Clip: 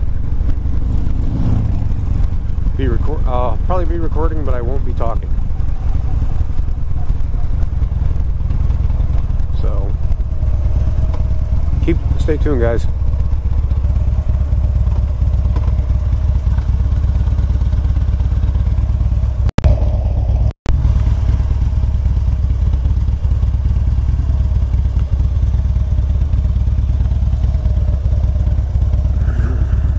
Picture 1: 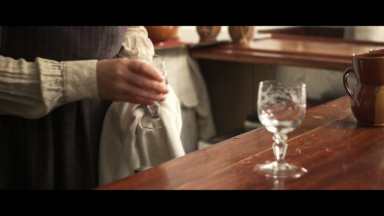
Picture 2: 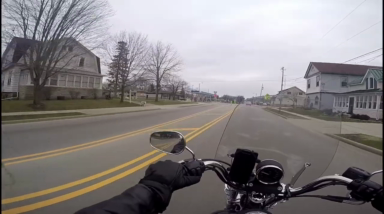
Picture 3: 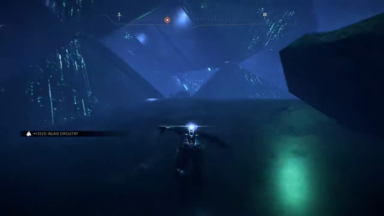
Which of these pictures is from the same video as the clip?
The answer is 2